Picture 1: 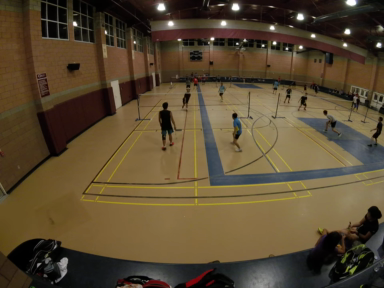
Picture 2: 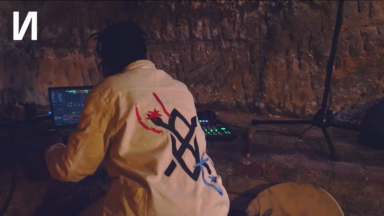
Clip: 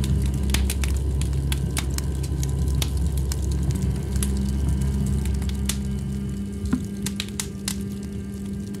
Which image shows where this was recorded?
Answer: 2